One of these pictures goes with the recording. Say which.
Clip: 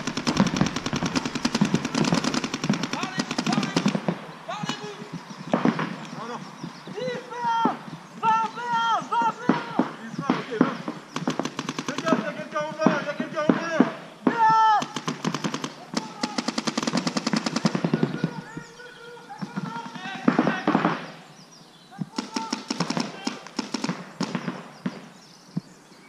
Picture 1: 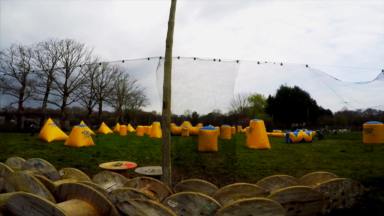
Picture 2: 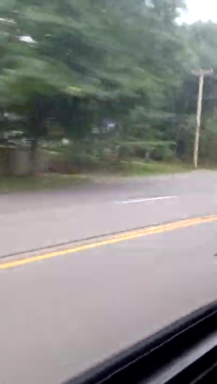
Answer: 1